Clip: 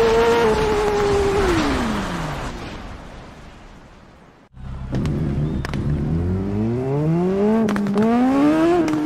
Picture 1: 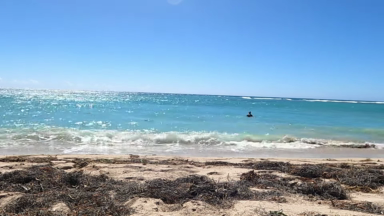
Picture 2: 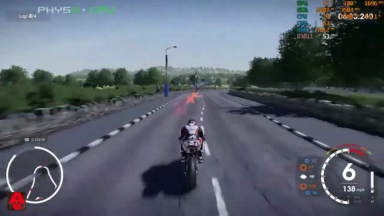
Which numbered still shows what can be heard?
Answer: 2